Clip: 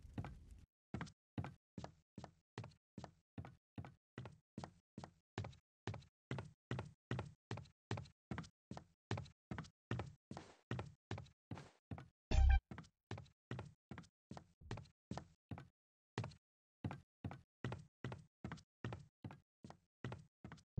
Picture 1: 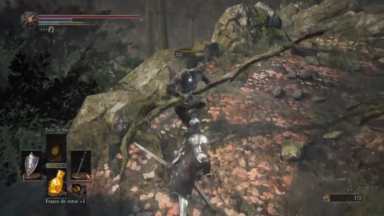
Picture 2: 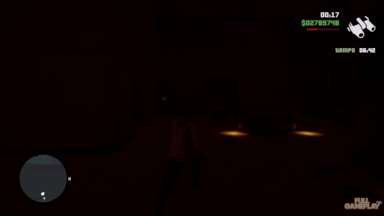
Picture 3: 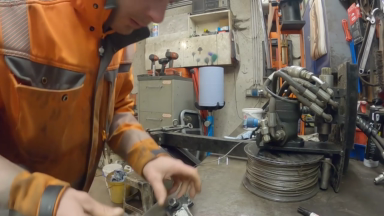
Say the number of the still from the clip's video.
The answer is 2